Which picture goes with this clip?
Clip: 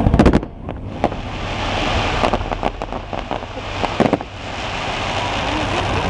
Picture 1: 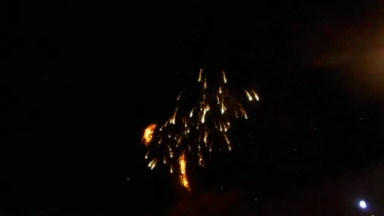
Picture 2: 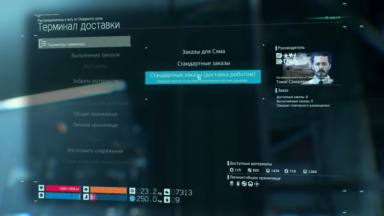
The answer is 1